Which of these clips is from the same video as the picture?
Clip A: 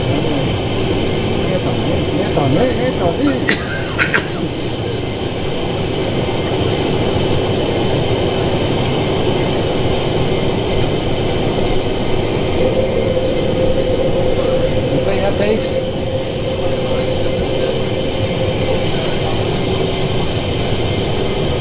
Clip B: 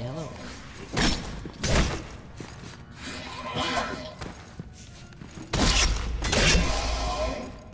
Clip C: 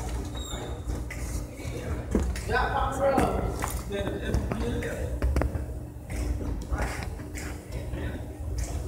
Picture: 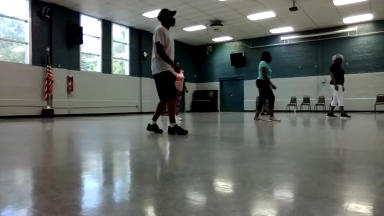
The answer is C